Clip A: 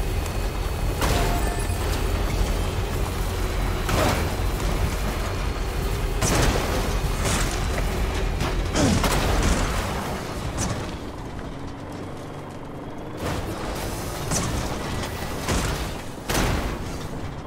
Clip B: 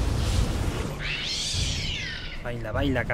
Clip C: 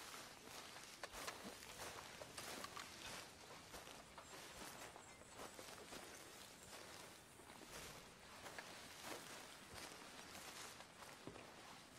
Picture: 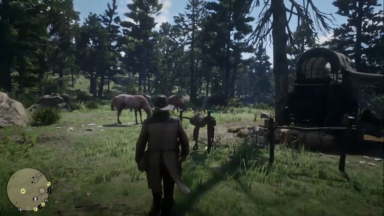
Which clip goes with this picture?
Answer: C